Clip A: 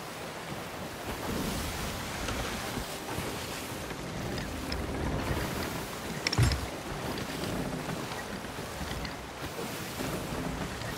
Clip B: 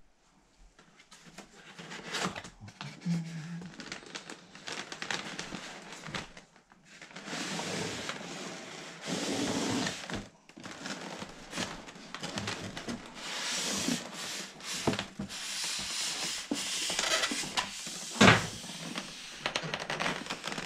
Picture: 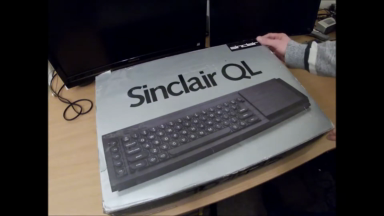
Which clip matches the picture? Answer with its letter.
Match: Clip B